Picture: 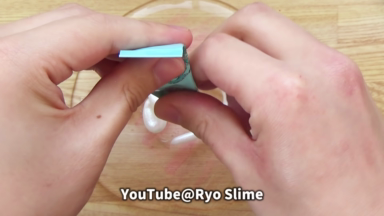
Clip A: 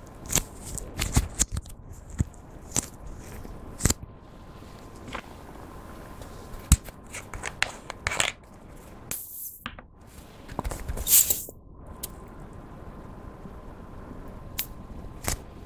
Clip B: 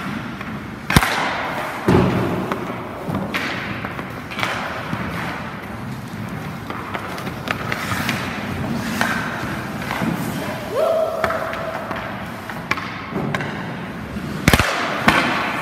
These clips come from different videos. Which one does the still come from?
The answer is A